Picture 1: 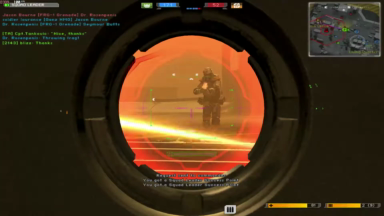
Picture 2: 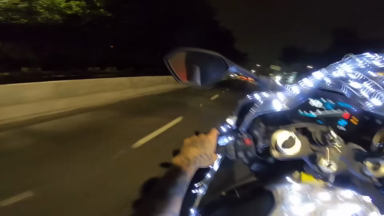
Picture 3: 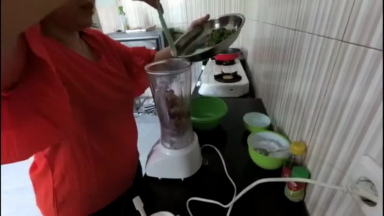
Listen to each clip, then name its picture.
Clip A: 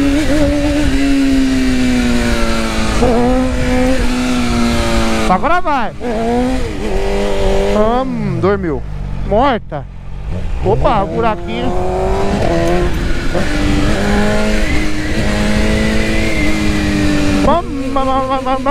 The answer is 2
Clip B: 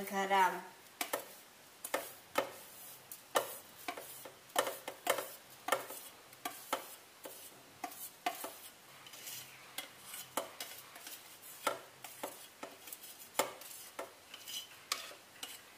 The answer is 3